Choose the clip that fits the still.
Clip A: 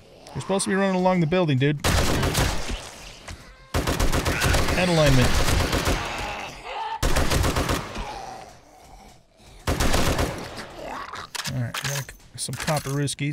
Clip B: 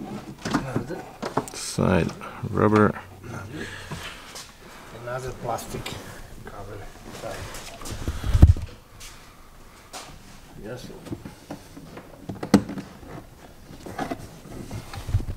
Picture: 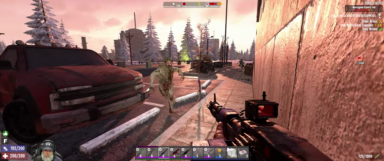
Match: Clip A